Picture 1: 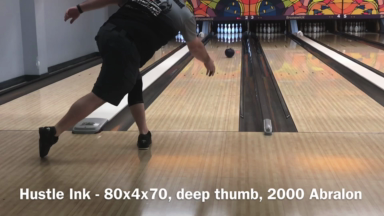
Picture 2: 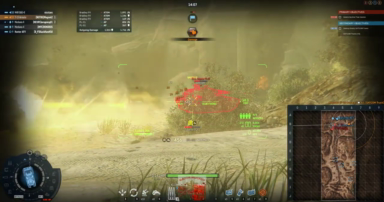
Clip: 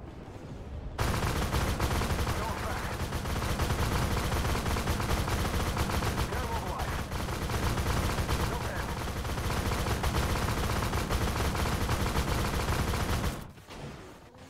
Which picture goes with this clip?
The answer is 2